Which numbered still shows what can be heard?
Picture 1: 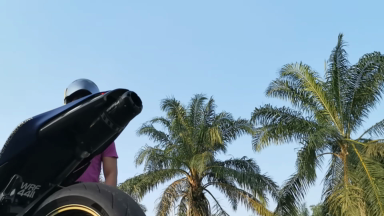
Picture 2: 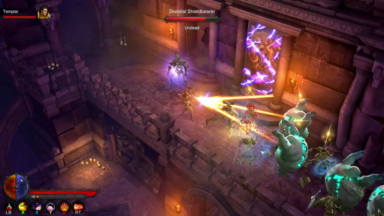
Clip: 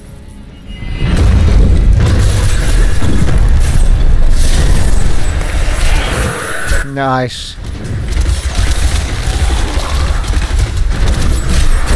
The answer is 2